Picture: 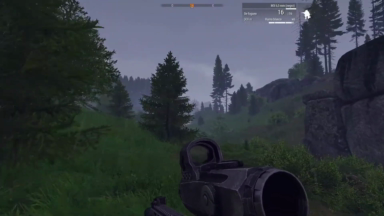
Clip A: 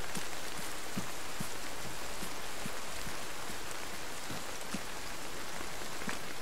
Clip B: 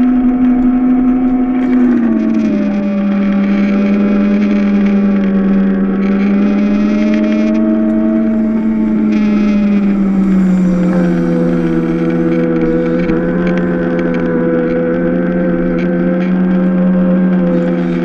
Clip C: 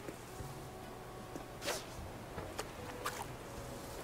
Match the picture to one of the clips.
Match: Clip A